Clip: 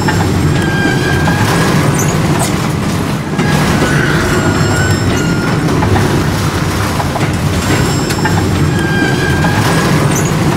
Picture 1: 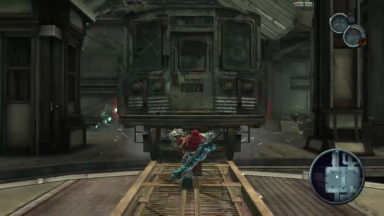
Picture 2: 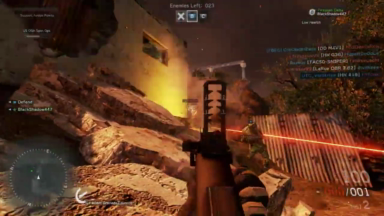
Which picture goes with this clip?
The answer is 1